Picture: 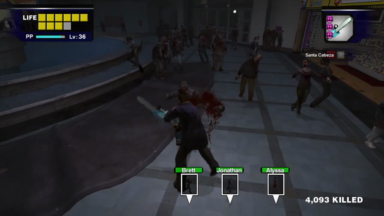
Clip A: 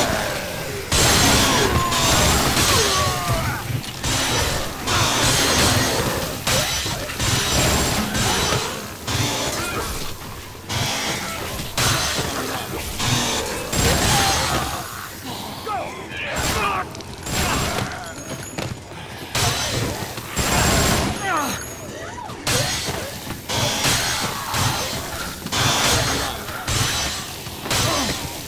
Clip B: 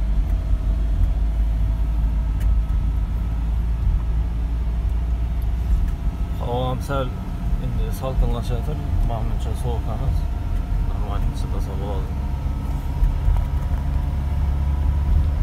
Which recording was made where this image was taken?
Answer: A